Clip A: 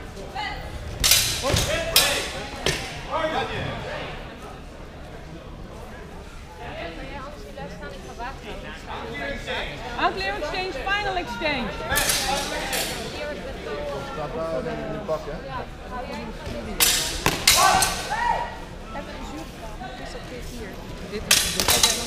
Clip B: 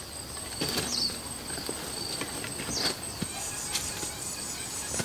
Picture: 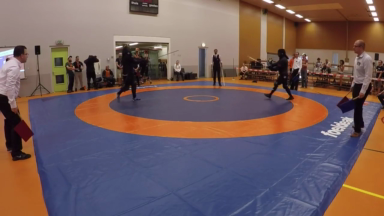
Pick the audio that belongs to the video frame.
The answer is A